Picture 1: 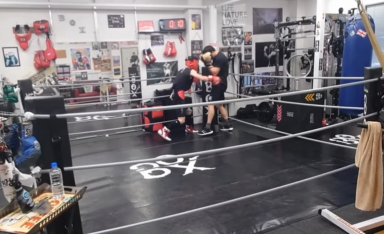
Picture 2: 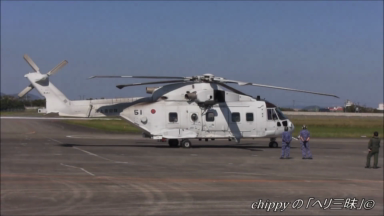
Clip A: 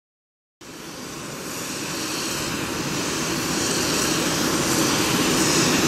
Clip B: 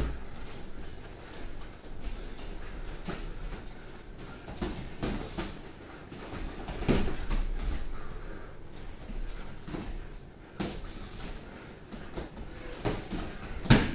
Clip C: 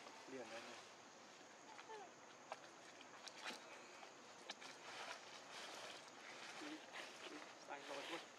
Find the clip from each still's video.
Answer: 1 B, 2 A